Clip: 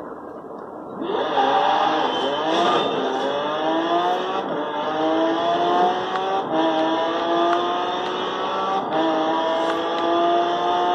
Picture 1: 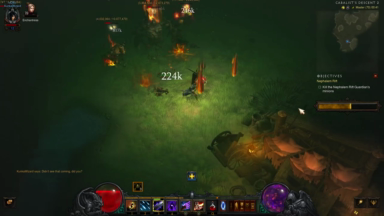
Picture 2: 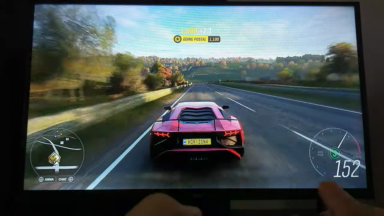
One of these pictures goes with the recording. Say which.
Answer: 2